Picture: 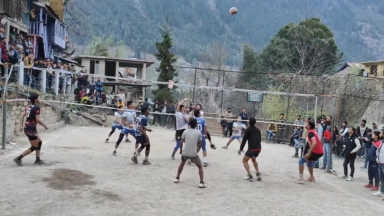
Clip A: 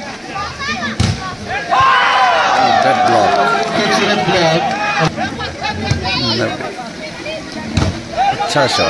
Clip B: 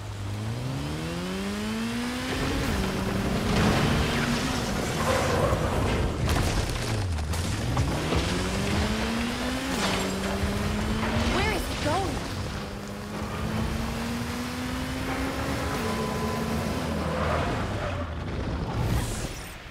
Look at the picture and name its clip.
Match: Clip A